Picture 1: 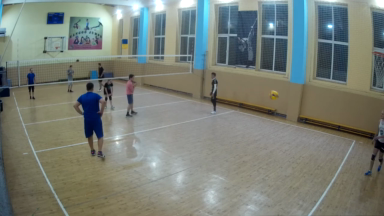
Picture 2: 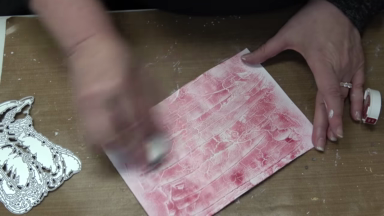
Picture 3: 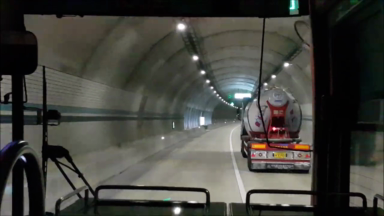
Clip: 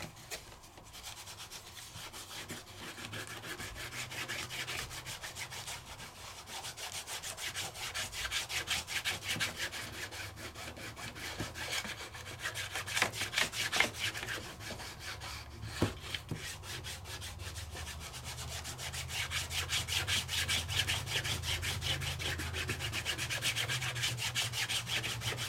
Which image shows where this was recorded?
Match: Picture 2